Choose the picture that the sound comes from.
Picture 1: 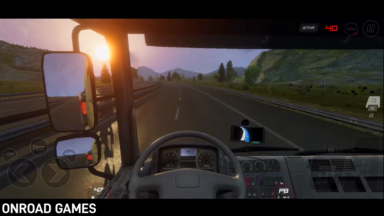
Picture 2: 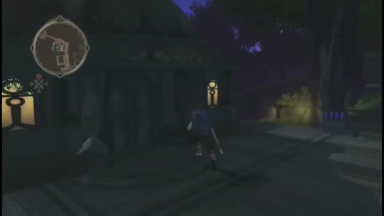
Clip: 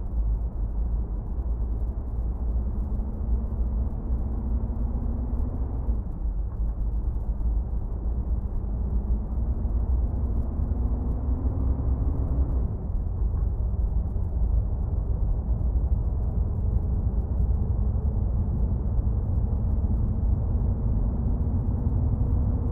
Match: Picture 1